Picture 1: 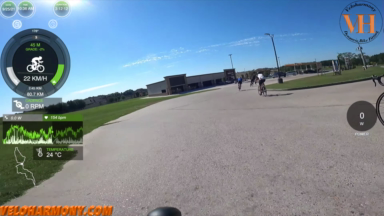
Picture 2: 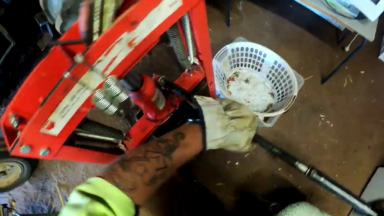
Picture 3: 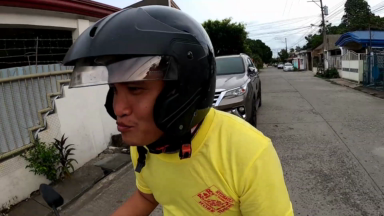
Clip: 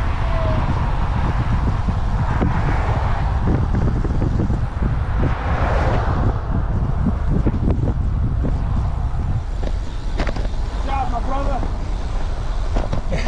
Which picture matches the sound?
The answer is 1